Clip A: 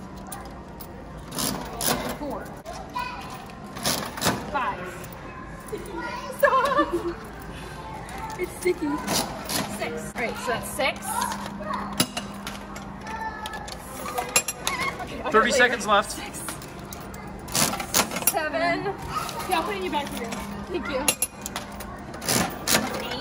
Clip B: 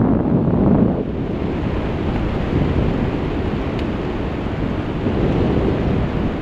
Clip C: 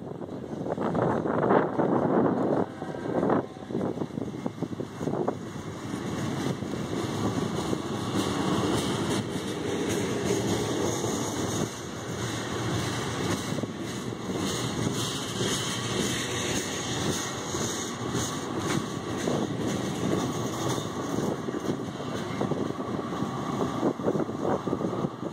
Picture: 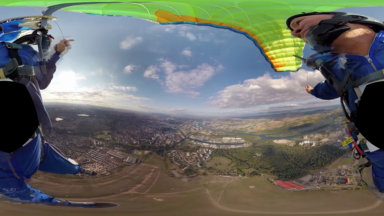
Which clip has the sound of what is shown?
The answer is B